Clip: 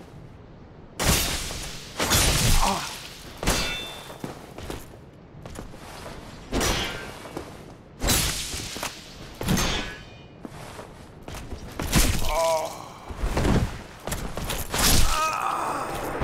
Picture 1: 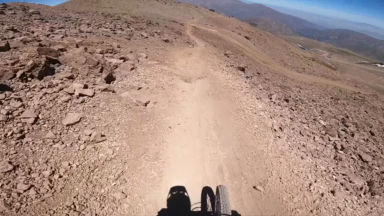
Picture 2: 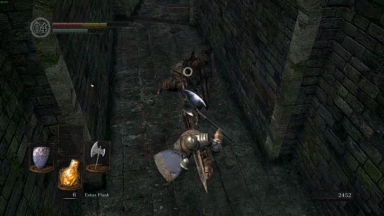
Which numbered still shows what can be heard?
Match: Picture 2